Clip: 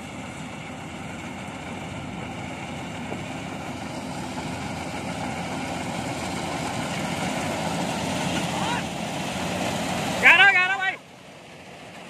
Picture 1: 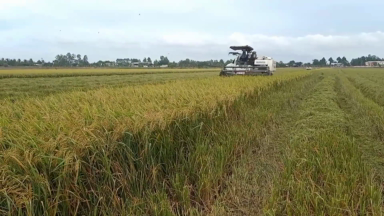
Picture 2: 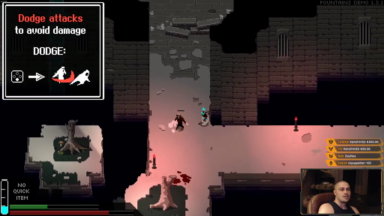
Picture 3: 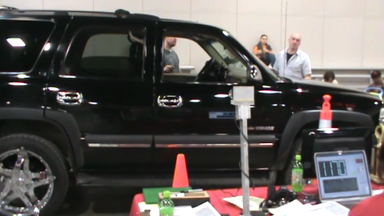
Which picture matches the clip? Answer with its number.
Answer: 1